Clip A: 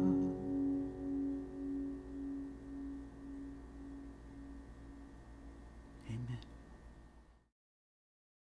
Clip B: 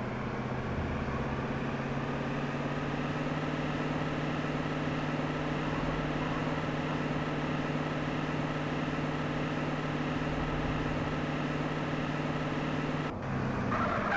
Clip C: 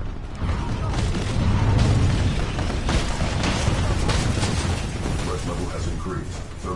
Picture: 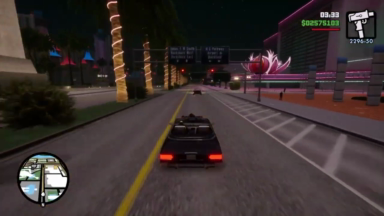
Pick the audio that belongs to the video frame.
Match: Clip B